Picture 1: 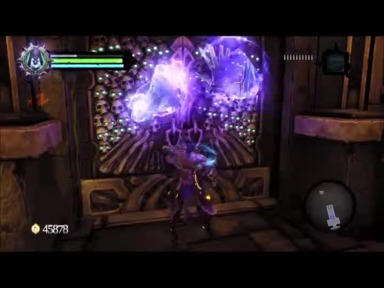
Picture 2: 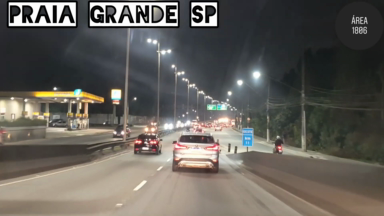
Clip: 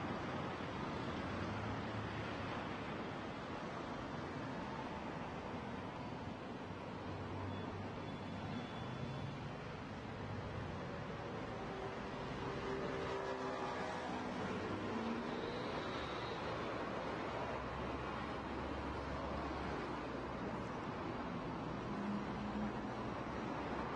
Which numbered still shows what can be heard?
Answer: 2